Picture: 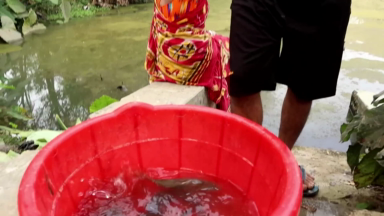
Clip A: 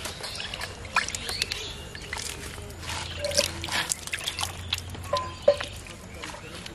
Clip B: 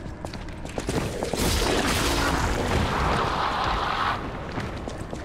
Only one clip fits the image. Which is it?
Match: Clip A